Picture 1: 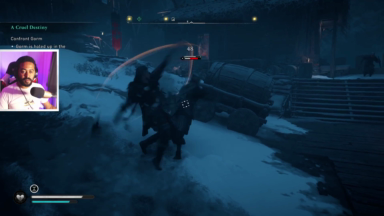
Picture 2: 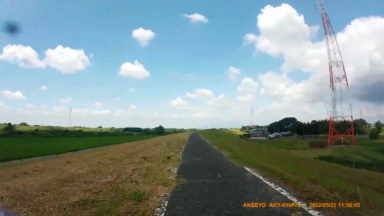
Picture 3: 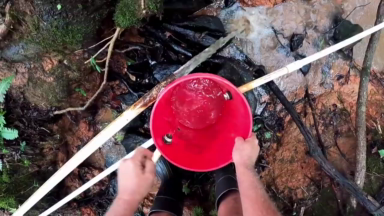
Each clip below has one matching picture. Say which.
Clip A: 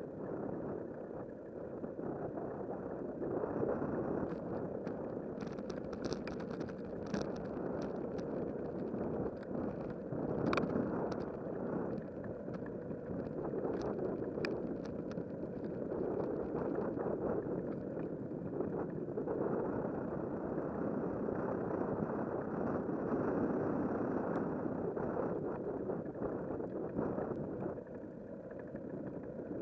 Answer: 2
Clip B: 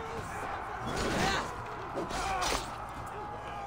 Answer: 1